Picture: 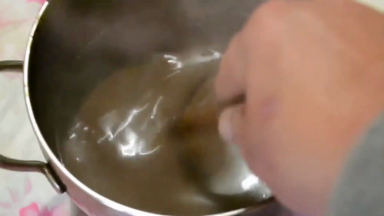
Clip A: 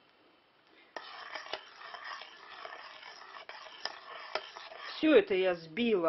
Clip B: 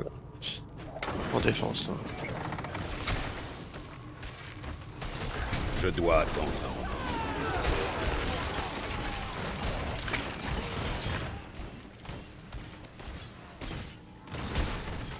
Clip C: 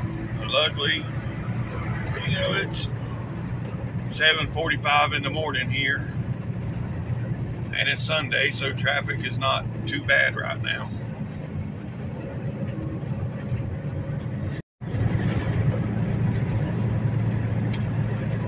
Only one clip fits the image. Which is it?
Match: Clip A